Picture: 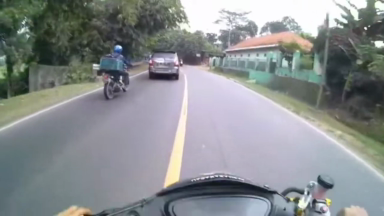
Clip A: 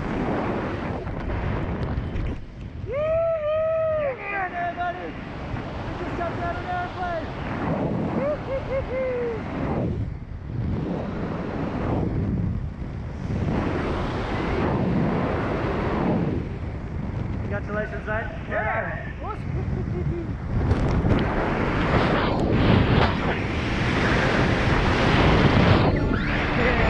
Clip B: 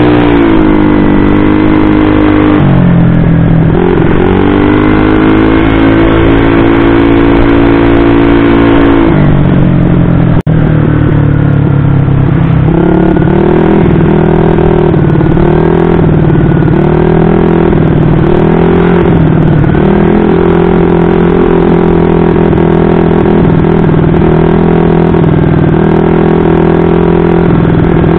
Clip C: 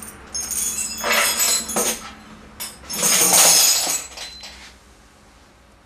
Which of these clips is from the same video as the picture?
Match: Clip B